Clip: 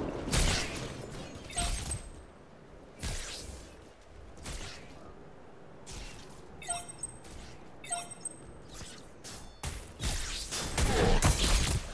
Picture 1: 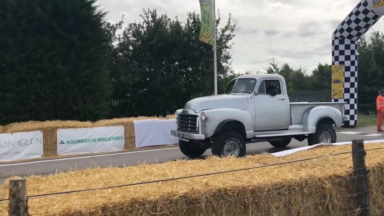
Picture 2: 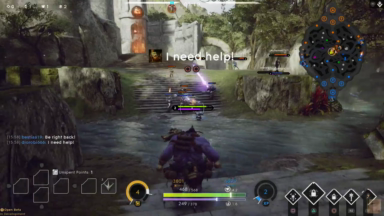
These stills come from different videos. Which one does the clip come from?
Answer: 2